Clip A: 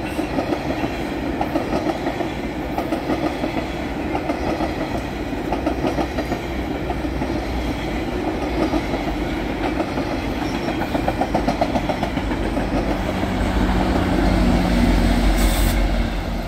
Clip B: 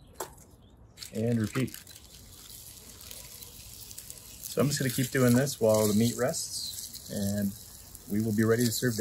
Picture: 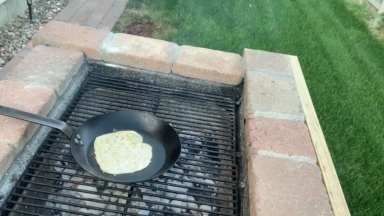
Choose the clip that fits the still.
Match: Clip B